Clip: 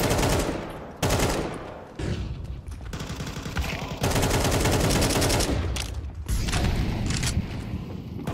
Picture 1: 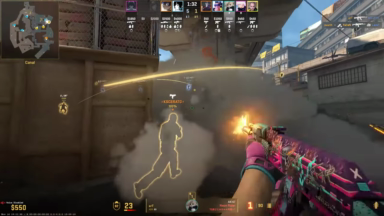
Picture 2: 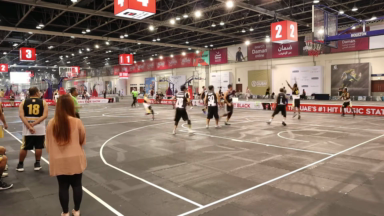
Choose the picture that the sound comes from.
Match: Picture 1